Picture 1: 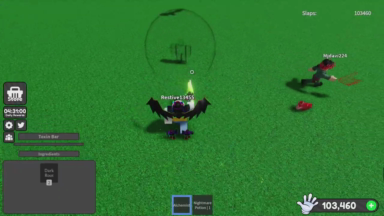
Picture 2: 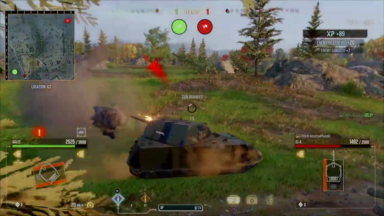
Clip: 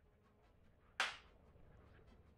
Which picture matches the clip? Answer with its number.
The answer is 1